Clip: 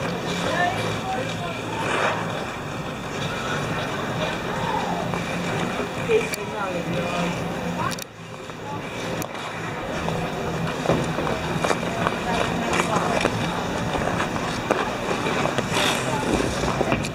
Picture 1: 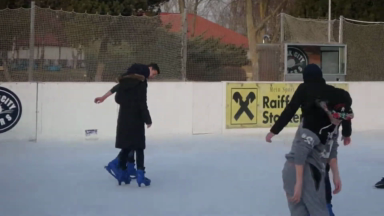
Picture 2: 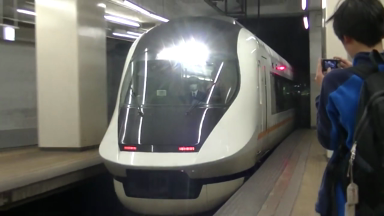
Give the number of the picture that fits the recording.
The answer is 1